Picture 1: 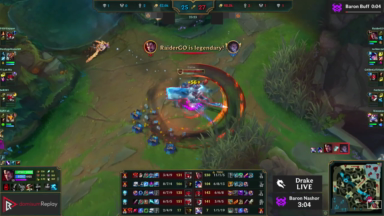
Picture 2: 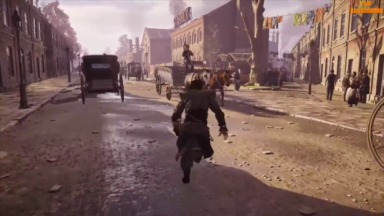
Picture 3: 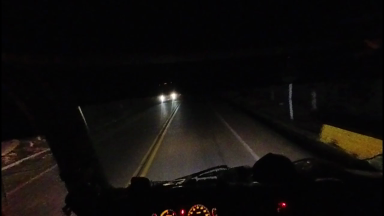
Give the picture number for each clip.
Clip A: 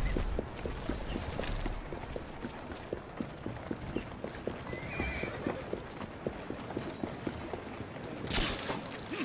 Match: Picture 2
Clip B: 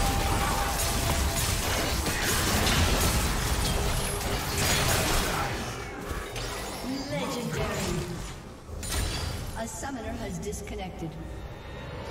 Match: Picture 1